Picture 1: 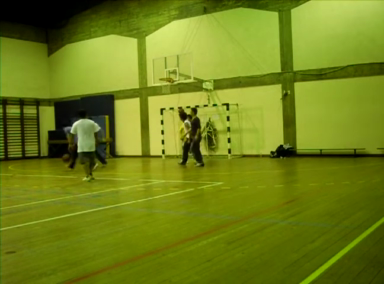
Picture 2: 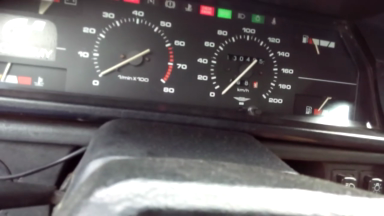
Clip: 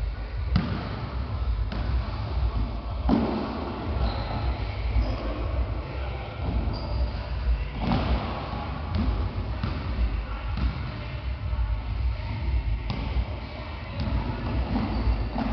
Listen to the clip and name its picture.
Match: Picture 1